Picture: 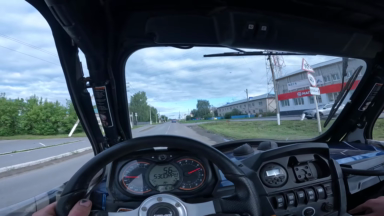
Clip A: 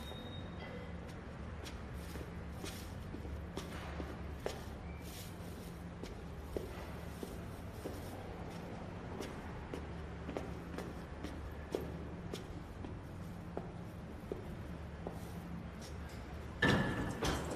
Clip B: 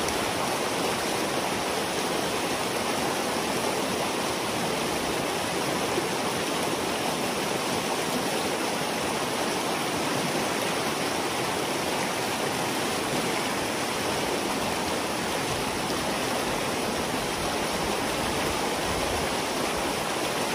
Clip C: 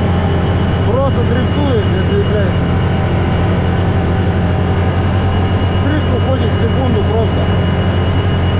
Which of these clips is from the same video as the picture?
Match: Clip C